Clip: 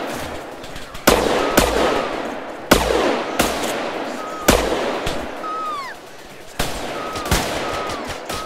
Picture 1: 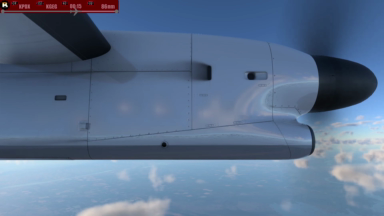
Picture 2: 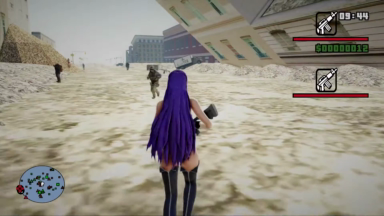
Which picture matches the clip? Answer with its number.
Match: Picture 2